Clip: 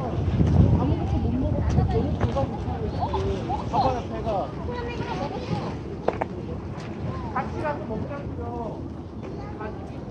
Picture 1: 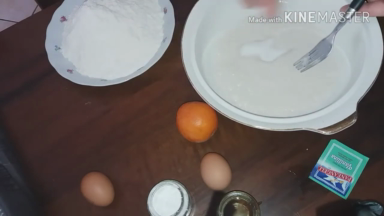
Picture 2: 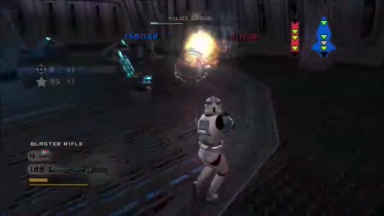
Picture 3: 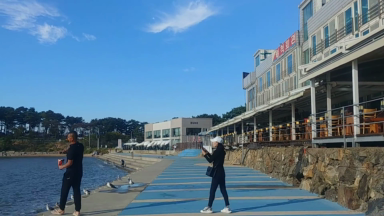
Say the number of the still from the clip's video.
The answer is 3